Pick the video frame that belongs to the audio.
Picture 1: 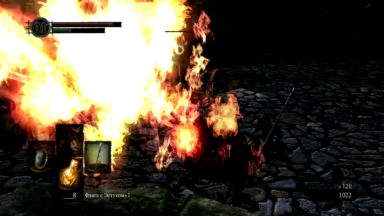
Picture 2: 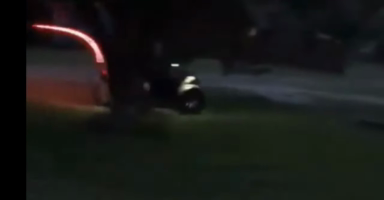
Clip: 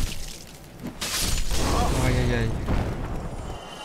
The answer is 1